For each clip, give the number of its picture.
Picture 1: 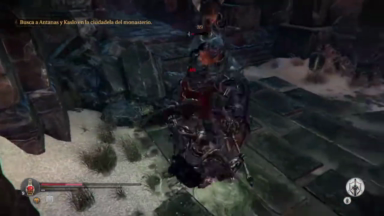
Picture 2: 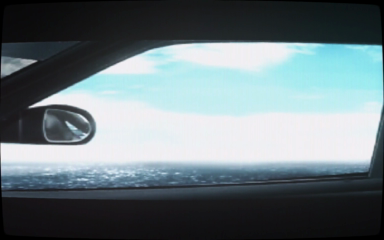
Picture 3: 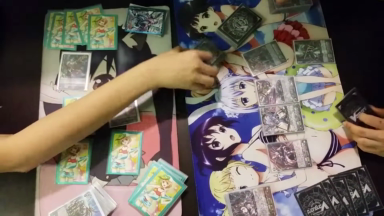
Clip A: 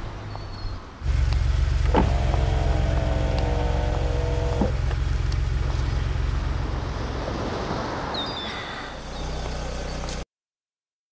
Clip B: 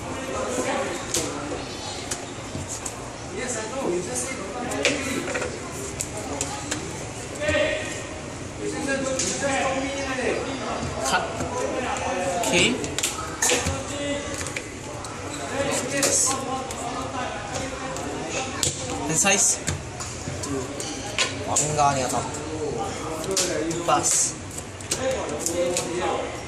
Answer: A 2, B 3